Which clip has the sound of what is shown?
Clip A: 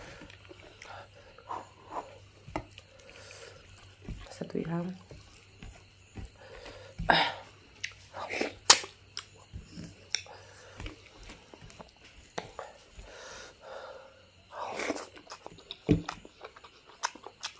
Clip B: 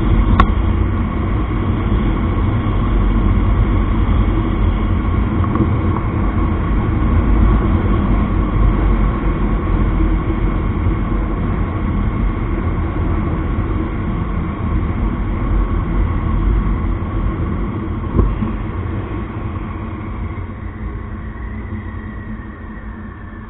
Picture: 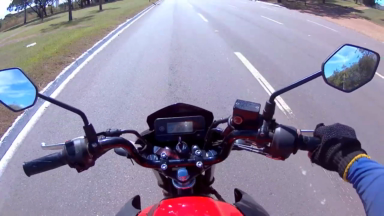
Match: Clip B